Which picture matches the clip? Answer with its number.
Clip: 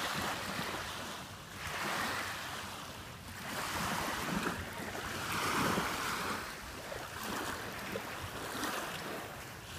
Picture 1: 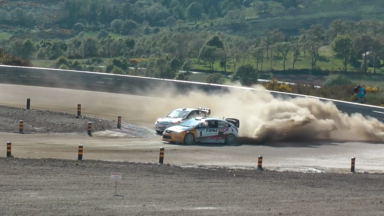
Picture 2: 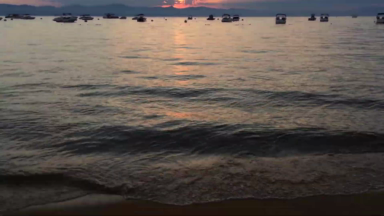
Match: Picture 2